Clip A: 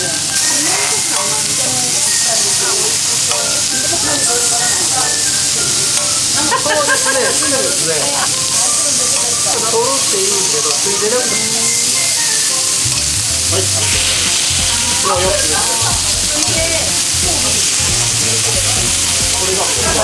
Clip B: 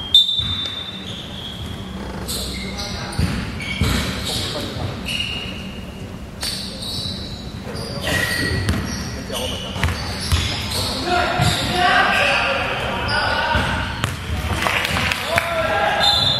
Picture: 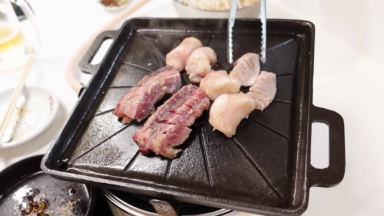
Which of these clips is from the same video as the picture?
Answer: A